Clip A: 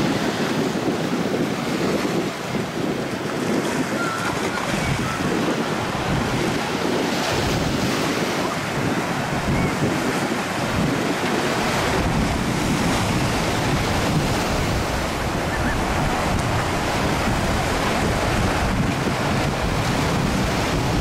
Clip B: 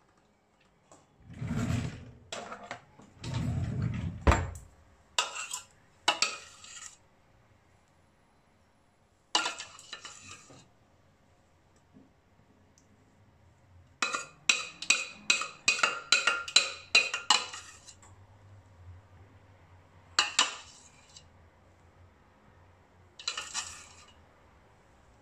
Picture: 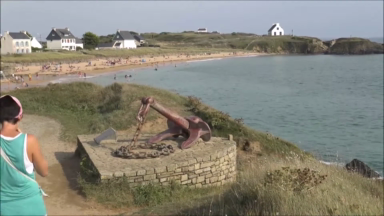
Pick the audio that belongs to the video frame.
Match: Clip A